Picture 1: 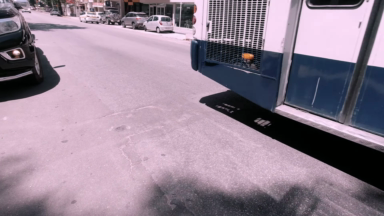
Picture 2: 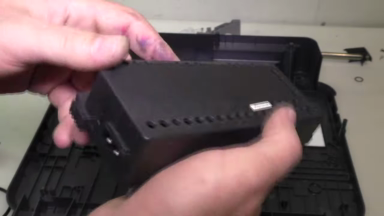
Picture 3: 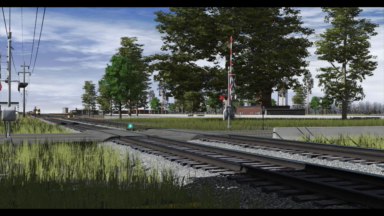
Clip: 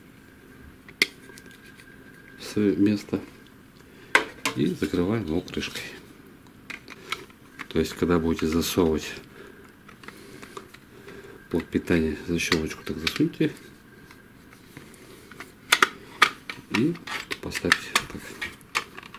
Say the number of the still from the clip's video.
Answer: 2